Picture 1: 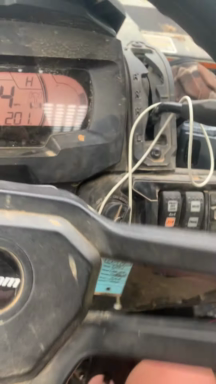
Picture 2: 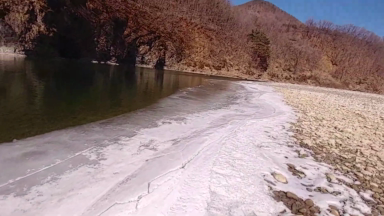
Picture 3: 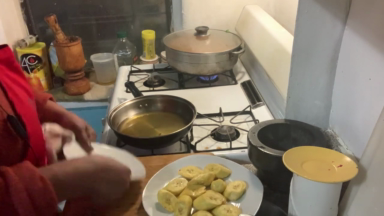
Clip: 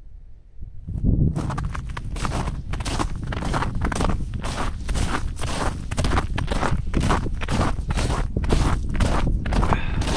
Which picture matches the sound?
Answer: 2